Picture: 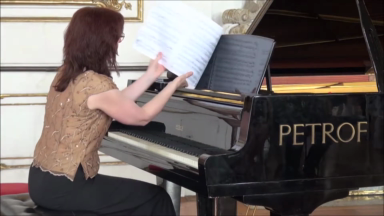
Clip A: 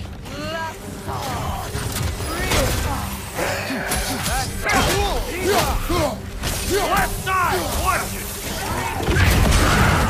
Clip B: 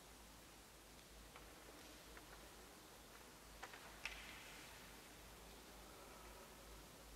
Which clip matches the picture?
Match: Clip B